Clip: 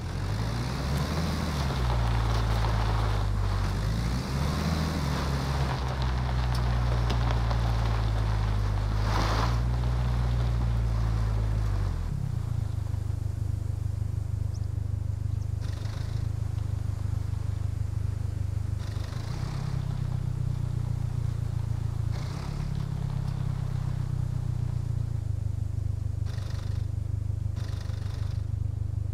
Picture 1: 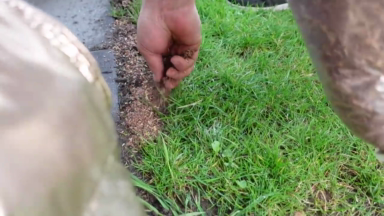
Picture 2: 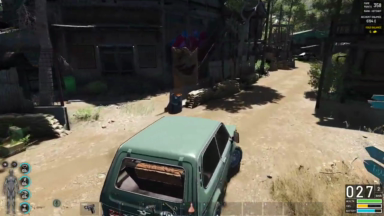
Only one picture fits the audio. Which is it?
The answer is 2